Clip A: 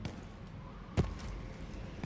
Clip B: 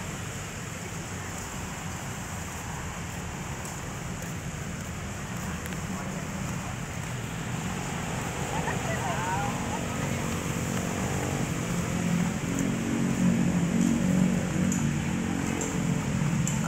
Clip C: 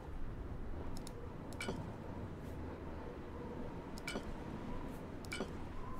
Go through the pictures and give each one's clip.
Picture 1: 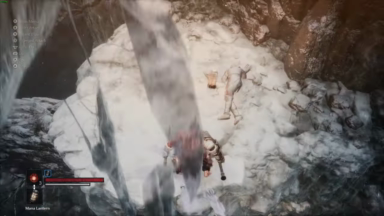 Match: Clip A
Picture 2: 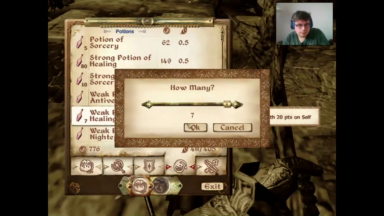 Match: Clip C